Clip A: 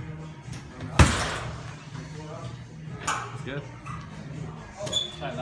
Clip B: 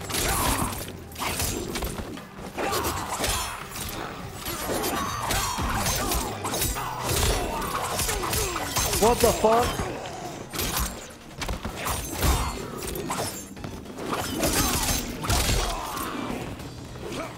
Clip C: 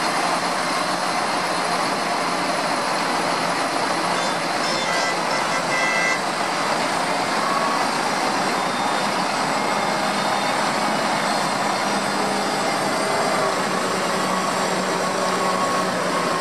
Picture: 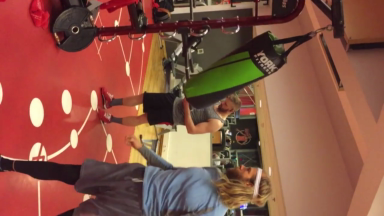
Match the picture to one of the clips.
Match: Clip A